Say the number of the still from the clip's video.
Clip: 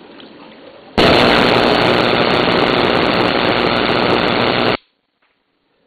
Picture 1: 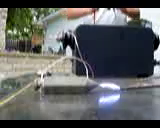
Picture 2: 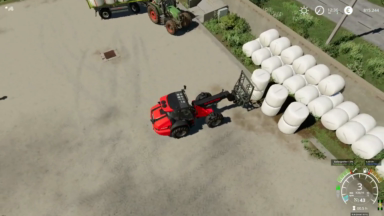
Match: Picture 1